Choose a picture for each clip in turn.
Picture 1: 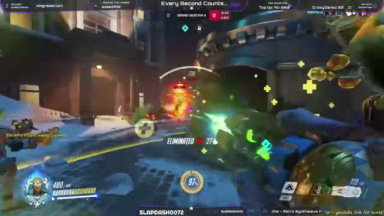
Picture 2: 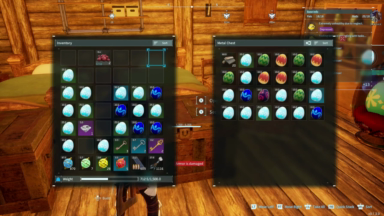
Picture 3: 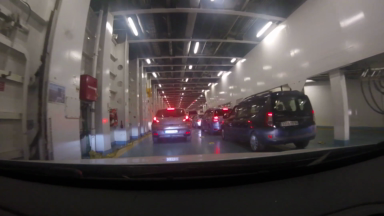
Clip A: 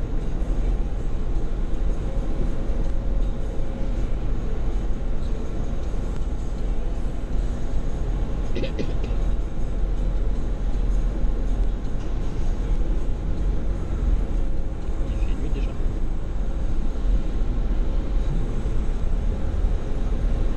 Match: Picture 3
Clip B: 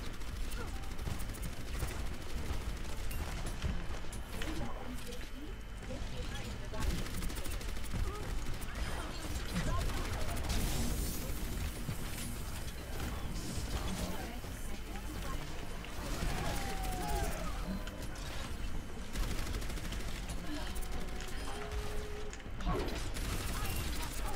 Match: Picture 1